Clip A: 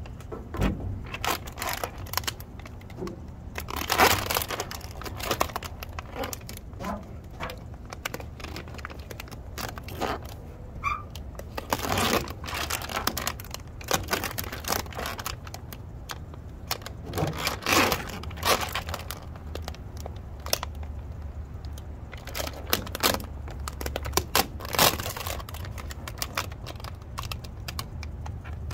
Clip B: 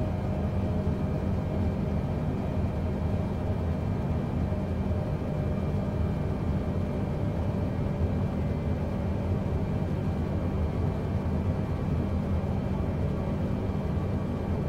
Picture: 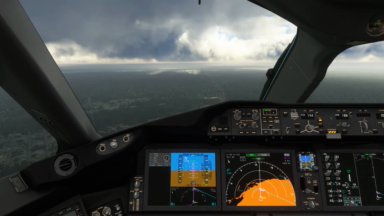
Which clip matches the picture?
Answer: B